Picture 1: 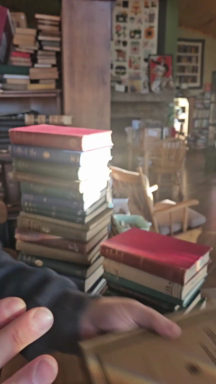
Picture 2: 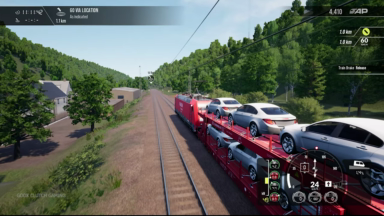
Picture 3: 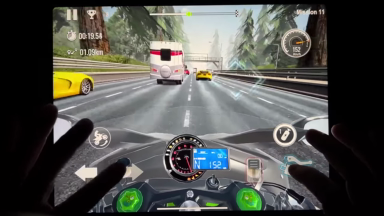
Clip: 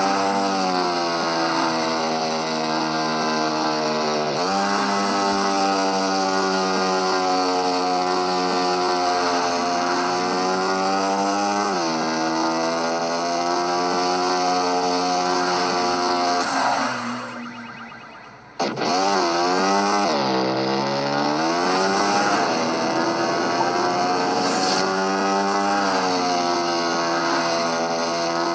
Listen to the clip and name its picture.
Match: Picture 3